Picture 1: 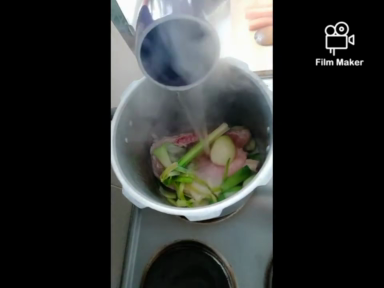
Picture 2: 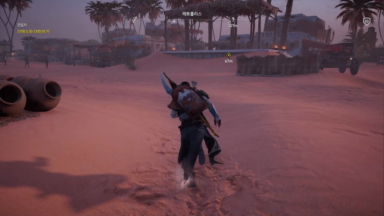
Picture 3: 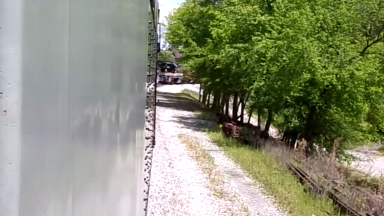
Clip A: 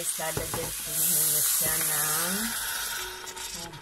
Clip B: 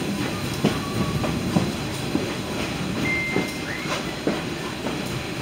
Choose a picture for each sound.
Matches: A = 1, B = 3